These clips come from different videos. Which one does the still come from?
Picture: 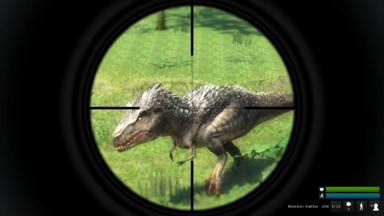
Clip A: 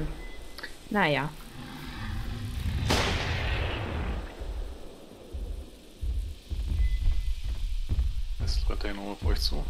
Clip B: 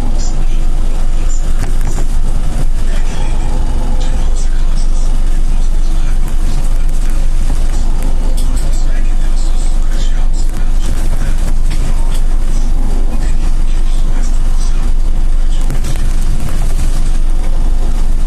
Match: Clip A